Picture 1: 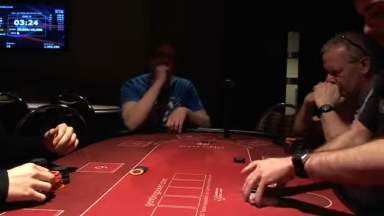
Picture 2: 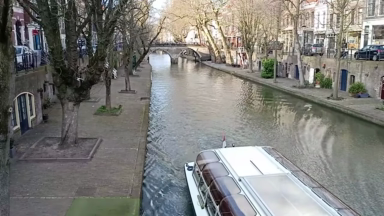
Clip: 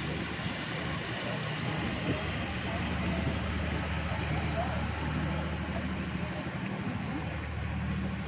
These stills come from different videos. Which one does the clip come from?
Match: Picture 2